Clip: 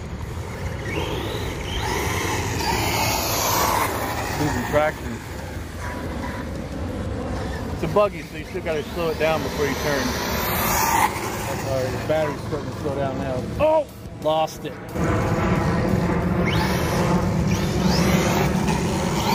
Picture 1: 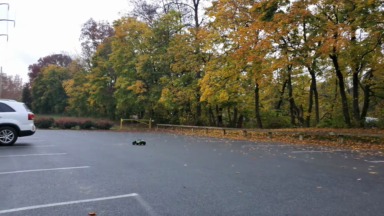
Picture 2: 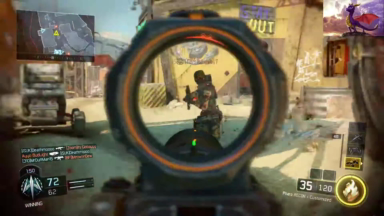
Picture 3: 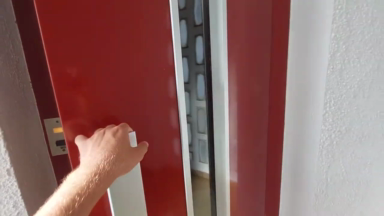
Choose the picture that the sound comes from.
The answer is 1